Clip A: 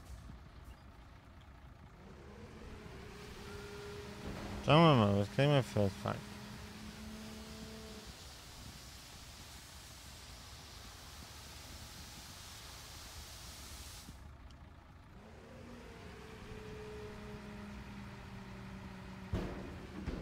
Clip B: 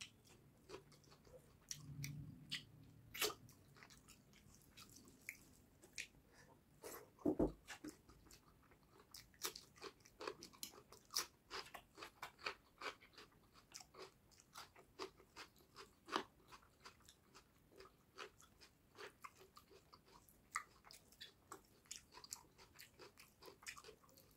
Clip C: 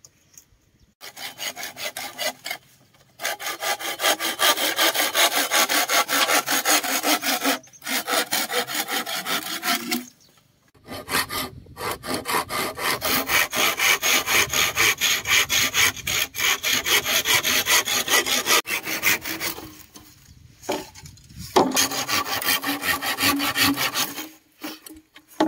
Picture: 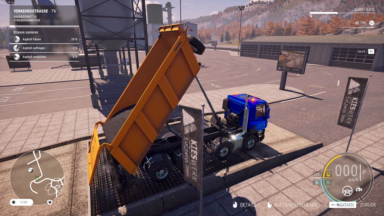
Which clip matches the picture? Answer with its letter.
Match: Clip A